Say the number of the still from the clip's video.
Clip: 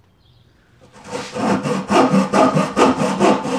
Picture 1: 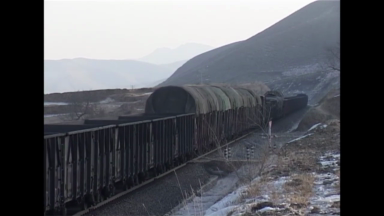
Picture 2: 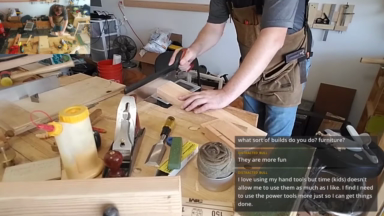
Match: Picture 2